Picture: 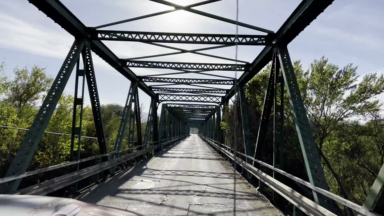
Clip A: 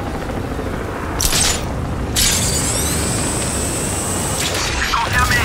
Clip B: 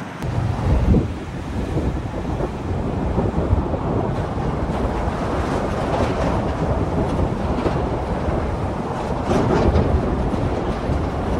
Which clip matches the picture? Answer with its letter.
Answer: B